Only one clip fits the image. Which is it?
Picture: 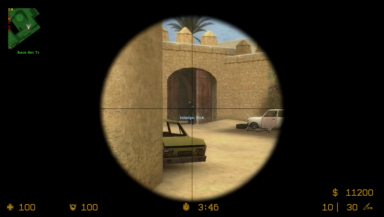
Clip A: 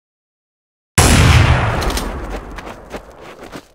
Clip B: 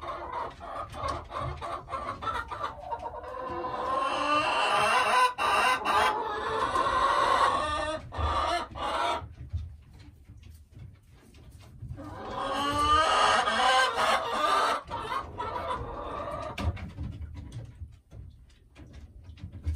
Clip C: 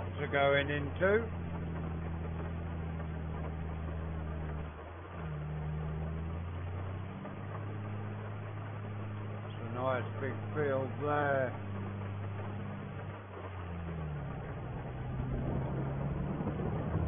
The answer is A